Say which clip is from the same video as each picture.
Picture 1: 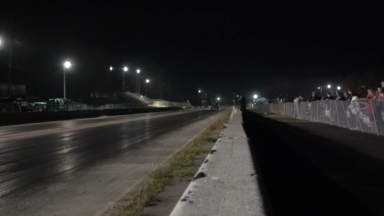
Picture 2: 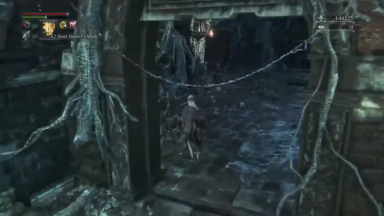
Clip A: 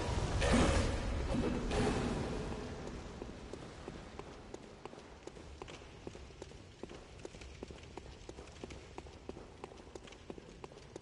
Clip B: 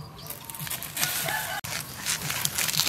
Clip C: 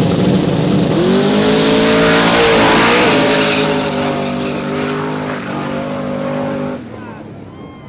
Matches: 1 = C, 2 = A